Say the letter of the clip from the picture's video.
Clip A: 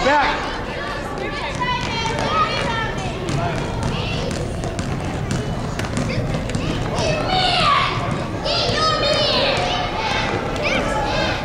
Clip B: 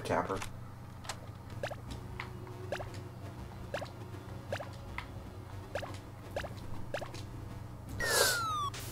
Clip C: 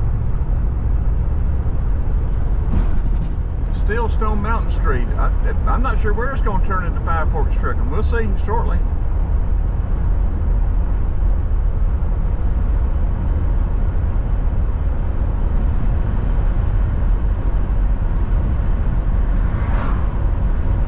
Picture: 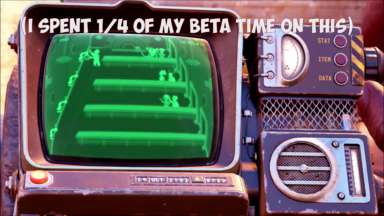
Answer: B